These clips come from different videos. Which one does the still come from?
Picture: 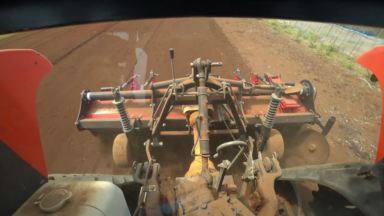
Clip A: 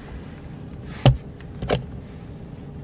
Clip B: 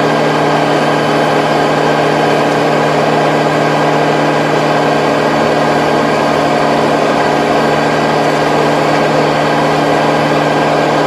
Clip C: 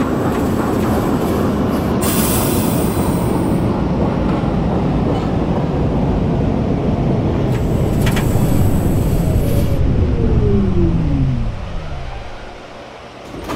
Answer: B